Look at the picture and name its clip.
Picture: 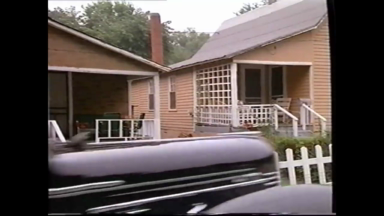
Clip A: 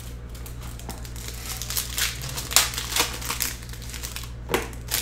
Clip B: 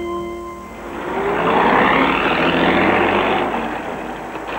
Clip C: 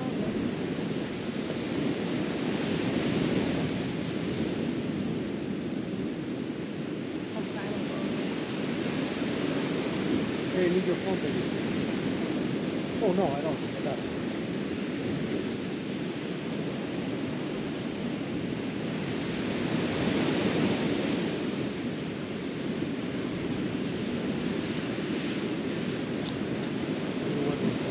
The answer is B